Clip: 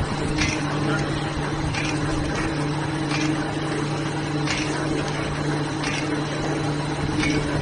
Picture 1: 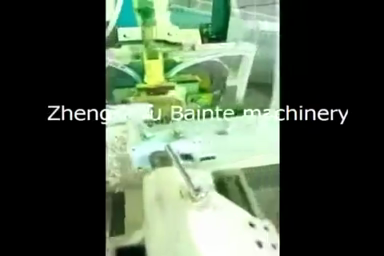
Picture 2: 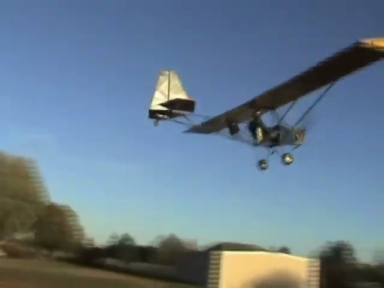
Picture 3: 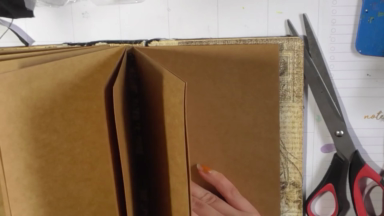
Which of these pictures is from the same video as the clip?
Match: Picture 1